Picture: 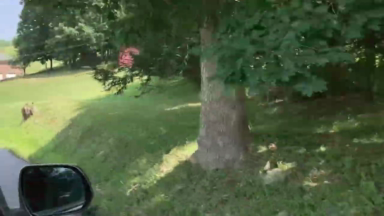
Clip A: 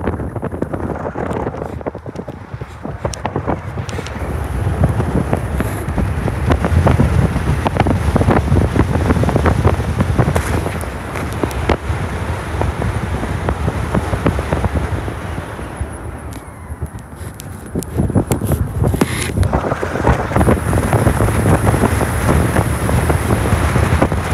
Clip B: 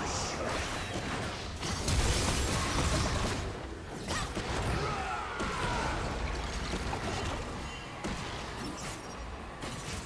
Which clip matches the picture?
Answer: A